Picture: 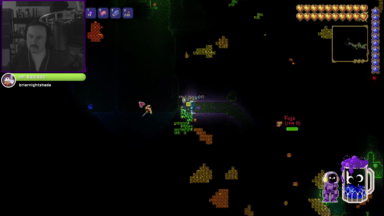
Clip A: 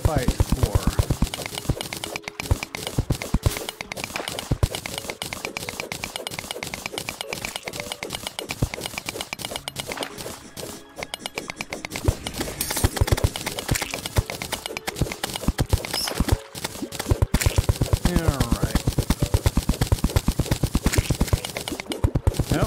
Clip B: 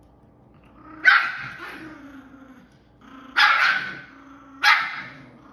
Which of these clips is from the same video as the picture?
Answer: A